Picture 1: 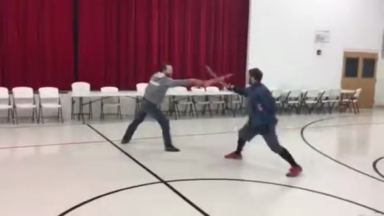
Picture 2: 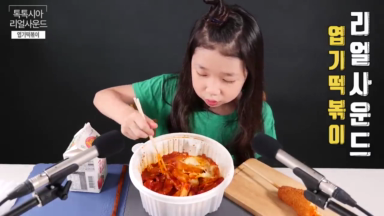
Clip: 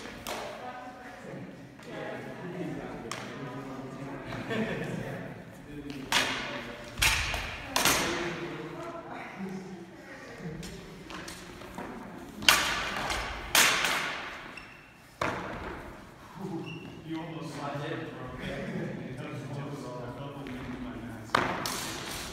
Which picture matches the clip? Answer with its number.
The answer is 1